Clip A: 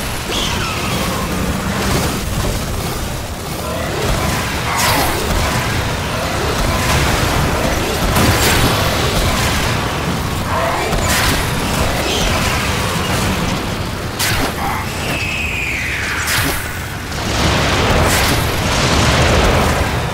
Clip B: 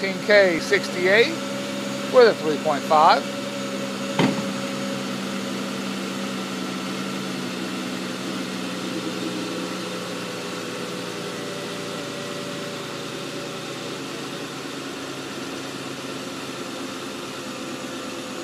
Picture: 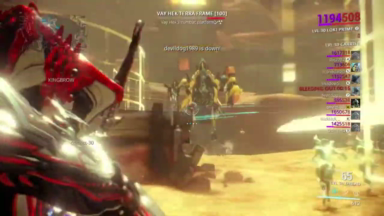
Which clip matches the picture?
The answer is A